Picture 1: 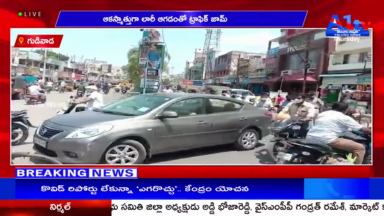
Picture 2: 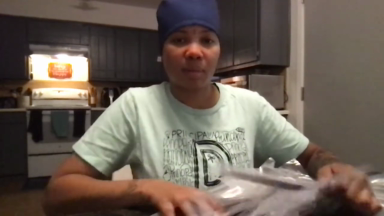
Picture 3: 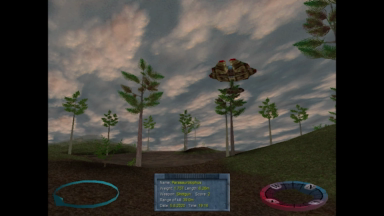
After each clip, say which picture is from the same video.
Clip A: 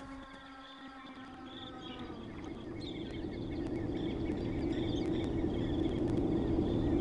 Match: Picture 3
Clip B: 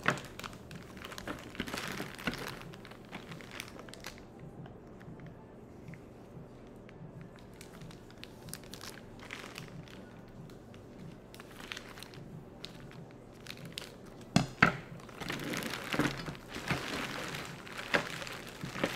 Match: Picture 2